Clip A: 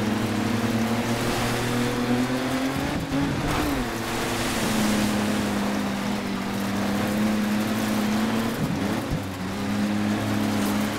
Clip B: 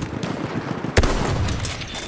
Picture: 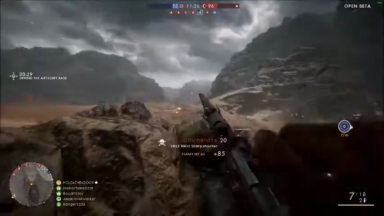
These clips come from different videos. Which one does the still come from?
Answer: B